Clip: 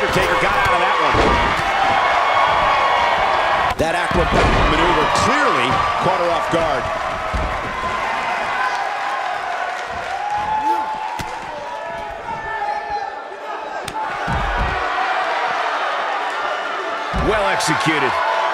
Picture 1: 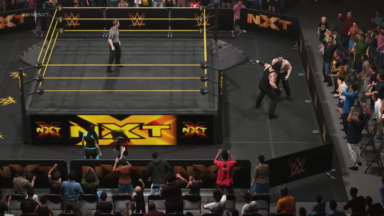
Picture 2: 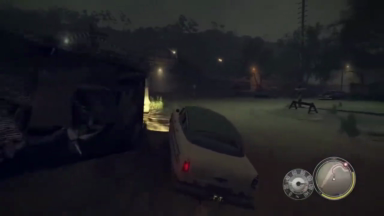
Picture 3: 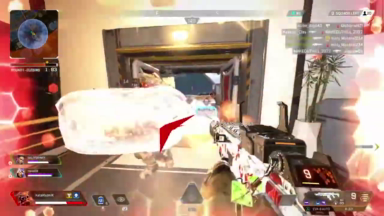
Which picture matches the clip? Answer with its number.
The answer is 1